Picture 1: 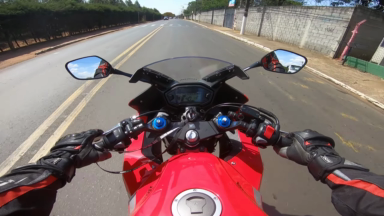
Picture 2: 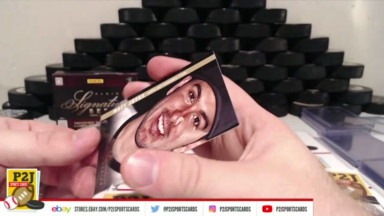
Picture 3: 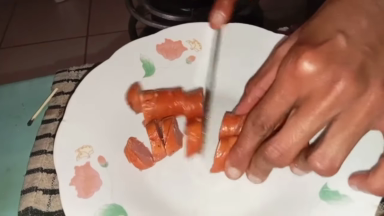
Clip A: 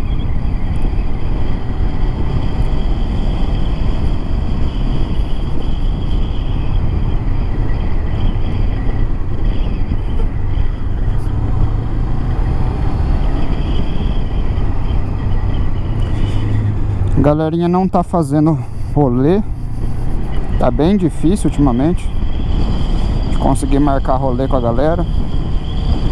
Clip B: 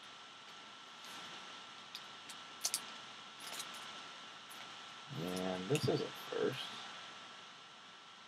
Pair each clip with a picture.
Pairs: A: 1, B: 2